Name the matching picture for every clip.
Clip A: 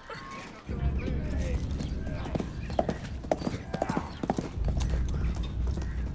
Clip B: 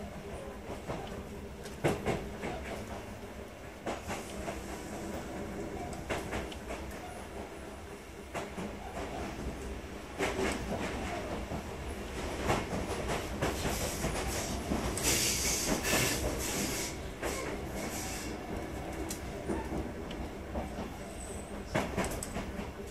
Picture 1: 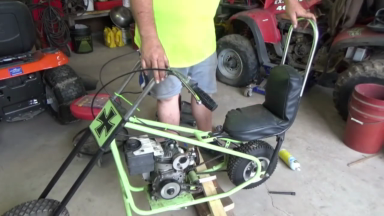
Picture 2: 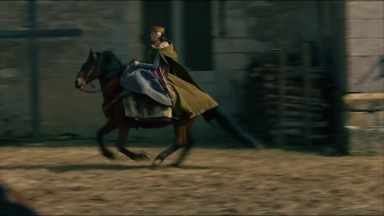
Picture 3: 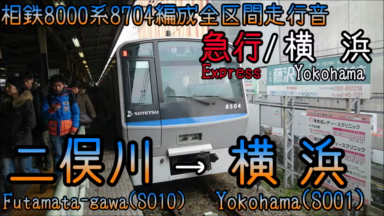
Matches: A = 2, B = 3